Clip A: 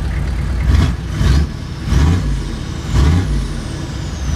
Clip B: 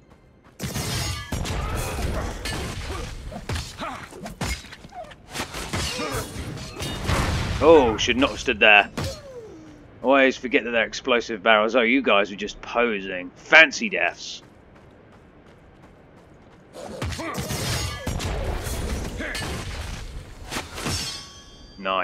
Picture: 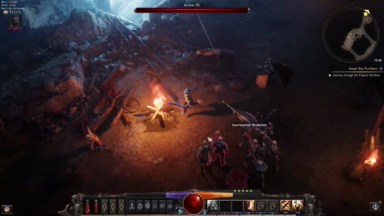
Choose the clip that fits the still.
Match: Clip B